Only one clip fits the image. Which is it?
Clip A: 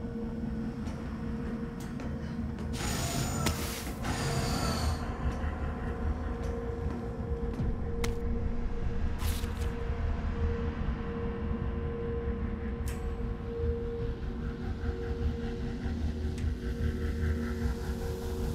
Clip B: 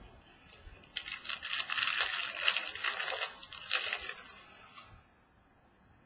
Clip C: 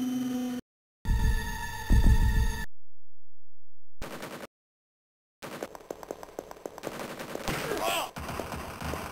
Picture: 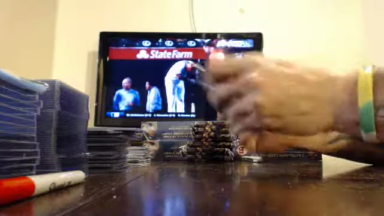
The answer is B